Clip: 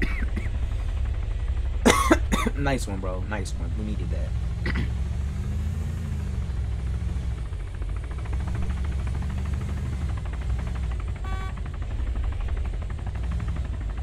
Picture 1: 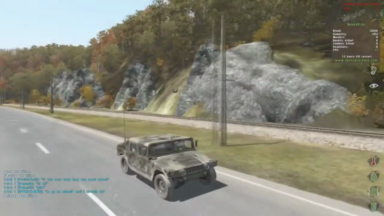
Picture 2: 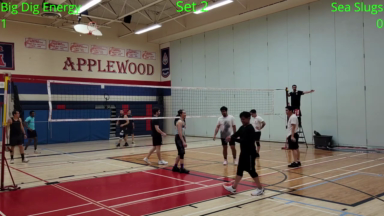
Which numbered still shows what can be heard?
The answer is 1